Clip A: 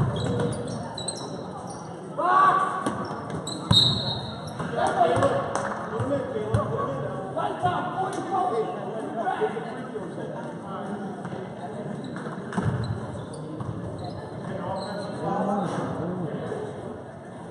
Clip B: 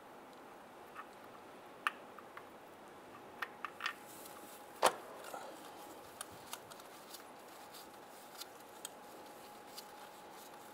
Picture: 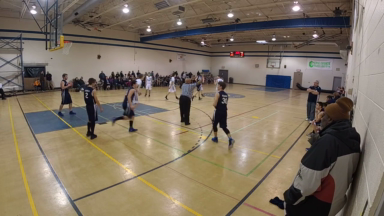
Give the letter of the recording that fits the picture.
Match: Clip A